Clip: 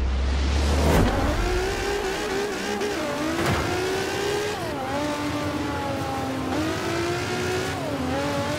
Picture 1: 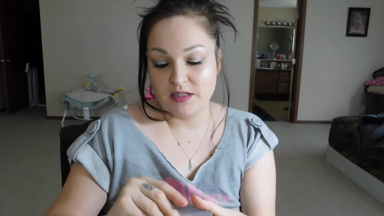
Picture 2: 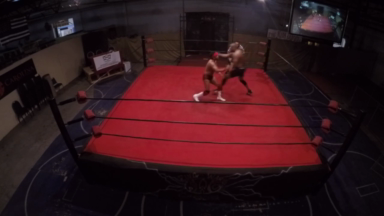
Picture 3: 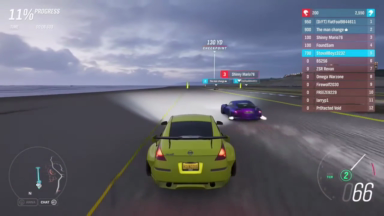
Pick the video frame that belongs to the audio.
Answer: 3